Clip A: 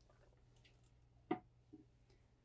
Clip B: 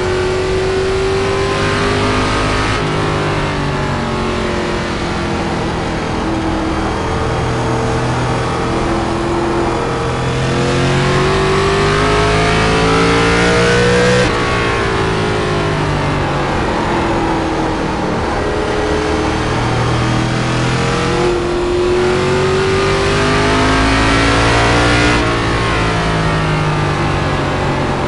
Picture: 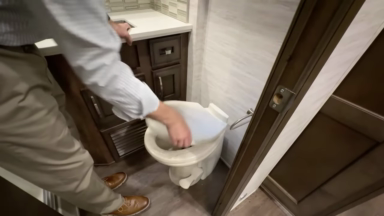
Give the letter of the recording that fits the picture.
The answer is A